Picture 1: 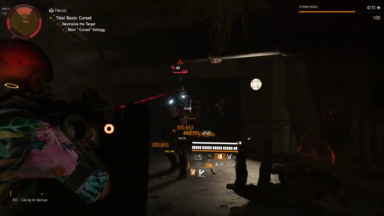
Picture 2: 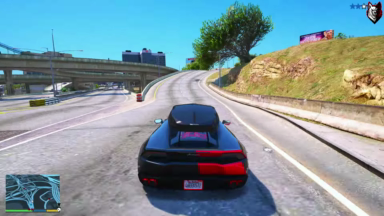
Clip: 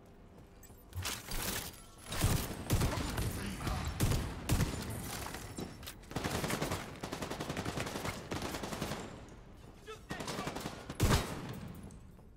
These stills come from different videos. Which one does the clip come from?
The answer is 1